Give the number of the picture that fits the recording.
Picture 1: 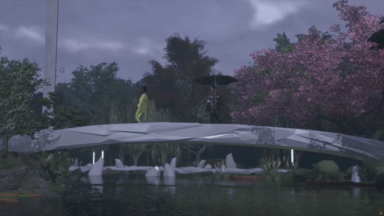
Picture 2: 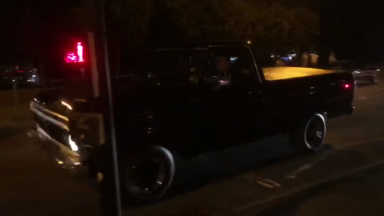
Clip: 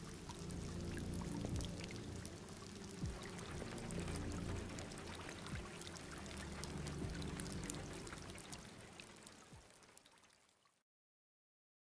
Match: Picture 1